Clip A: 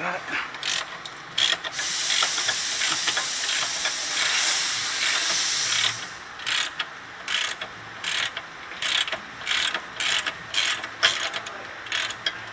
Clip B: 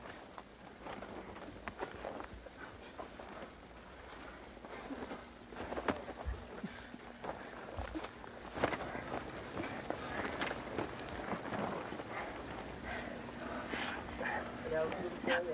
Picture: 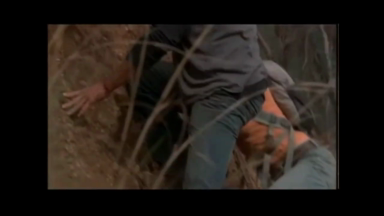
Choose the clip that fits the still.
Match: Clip B